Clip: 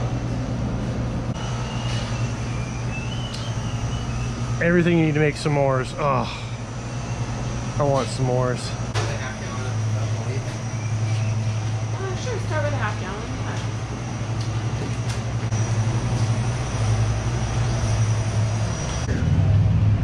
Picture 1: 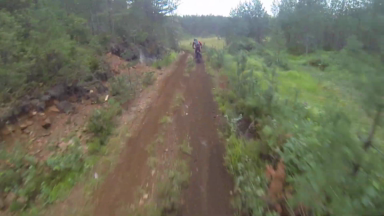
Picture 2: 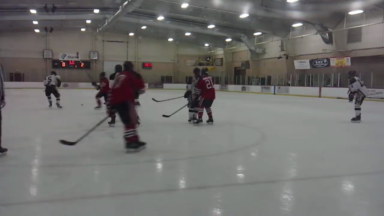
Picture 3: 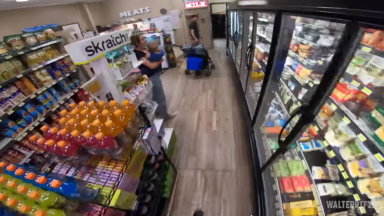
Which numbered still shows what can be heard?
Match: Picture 3